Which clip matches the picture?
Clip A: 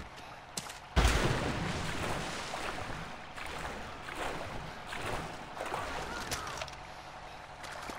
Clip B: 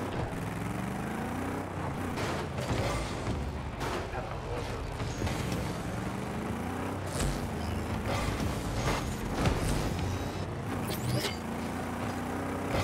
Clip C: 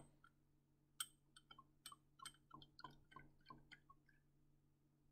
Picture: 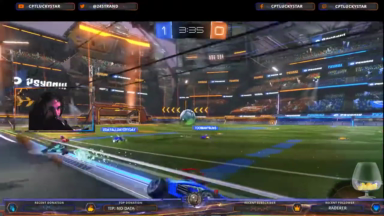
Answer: B